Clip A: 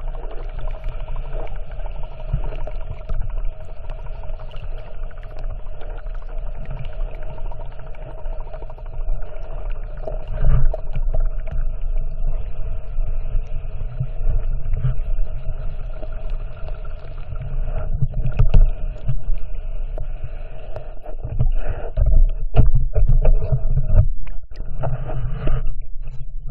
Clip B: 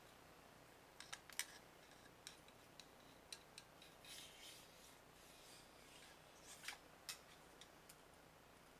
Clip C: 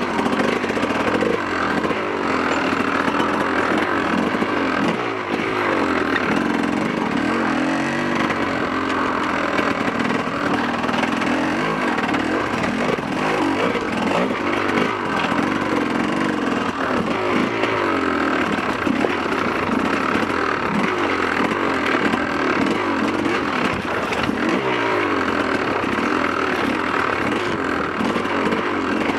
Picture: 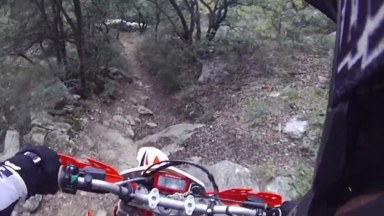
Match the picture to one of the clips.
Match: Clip C